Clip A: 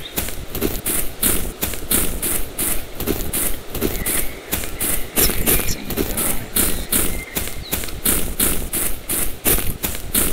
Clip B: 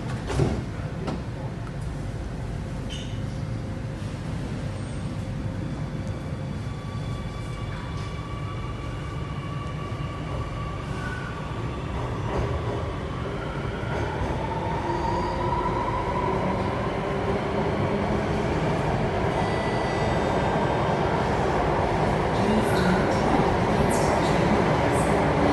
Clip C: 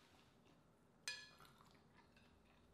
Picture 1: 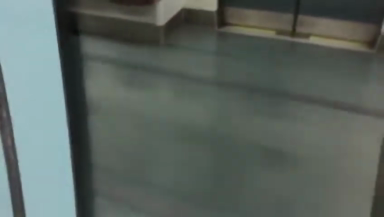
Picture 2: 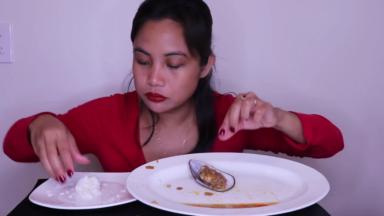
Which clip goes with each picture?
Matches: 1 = B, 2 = C